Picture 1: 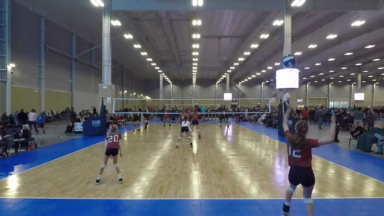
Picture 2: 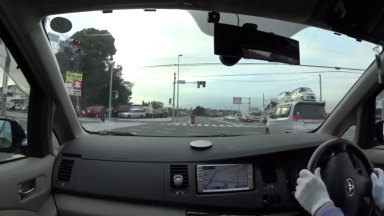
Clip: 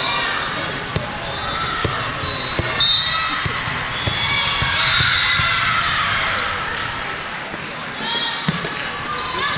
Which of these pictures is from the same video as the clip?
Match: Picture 1